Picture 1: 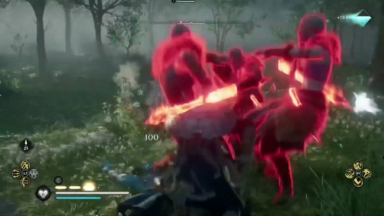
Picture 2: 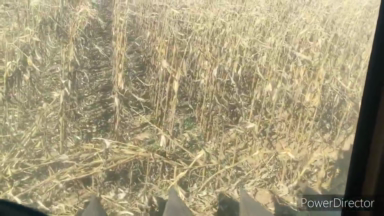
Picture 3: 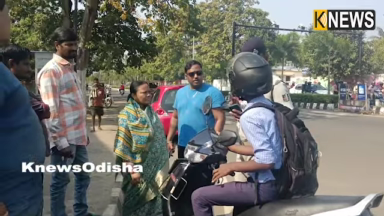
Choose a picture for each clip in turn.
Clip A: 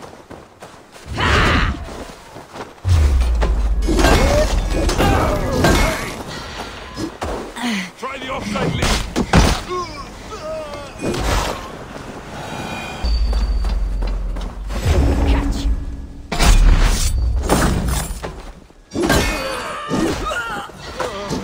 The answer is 1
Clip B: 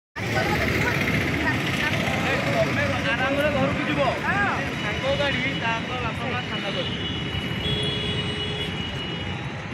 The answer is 3